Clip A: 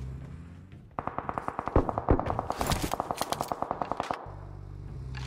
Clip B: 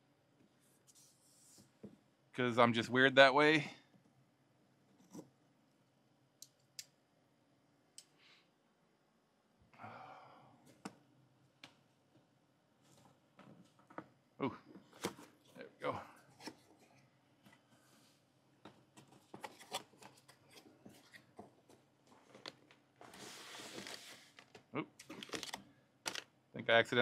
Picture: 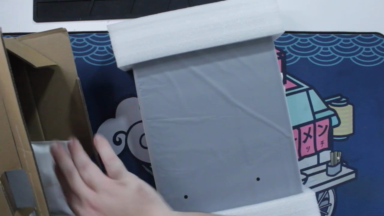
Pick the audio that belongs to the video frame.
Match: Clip B